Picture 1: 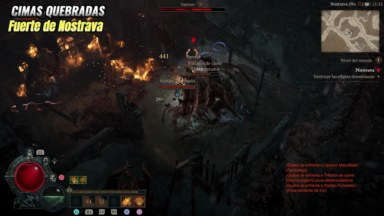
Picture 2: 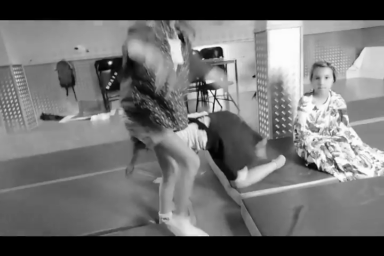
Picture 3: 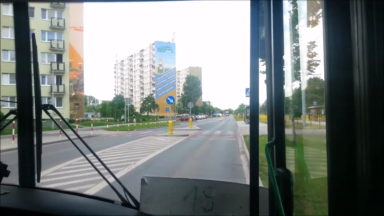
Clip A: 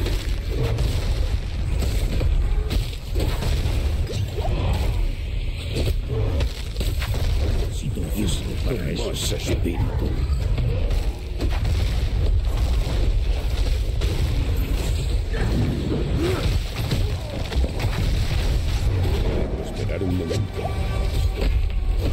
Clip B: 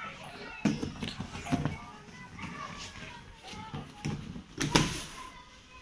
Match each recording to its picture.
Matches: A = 1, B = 2